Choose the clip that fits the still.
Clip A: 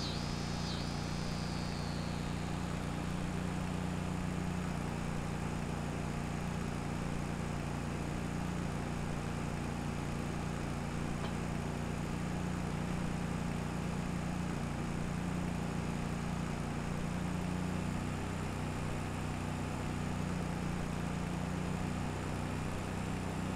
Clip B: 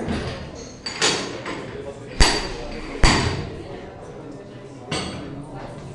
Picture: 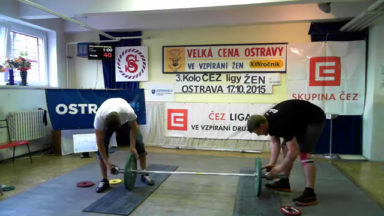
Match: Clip B